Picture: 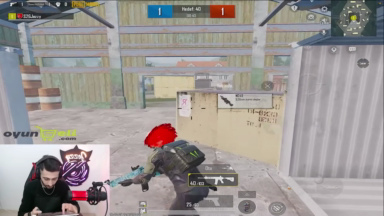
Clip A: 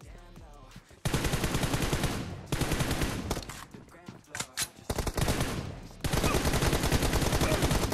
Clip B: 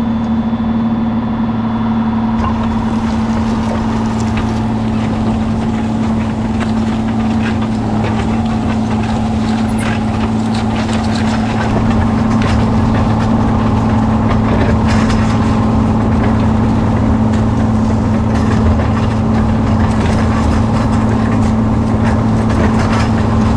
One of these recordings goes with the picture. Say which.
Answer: A